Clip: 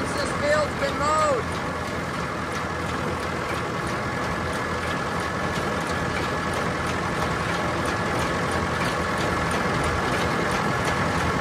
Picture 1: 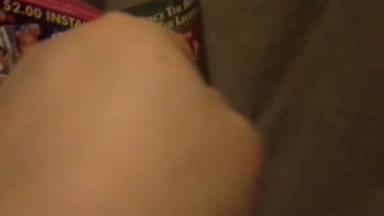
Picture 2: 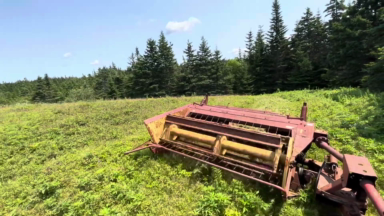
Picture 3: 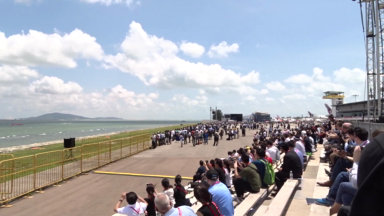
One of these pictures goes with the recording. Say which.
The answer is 2